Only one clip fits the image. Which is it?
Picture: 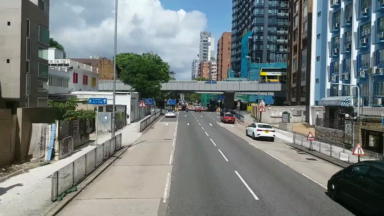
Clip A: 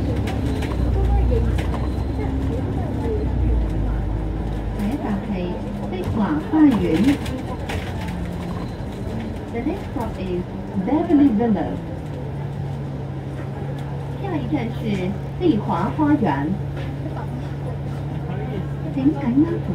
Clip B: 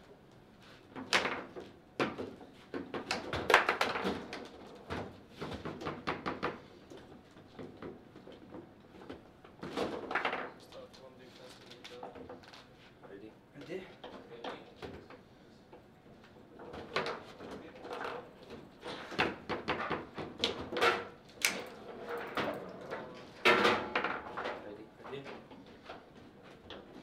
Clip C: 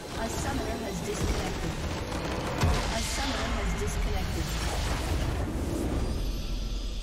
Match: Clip A